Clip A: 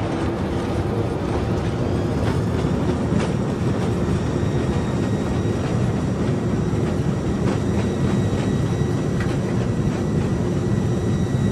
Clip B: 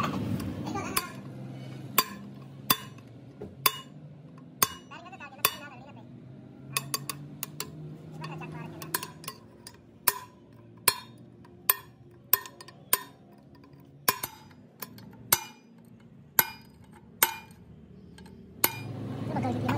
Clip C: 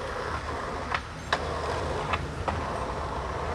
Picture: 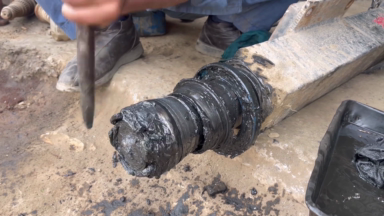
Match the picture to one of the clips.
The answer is B